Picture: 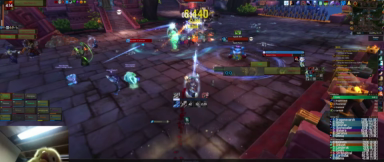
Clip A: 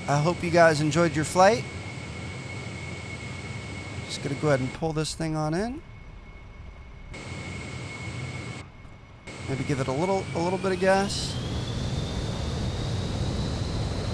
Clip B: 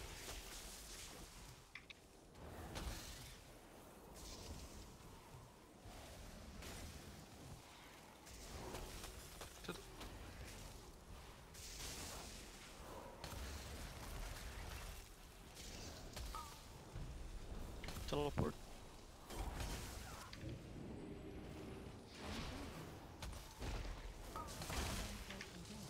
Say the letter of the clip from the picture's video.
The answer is B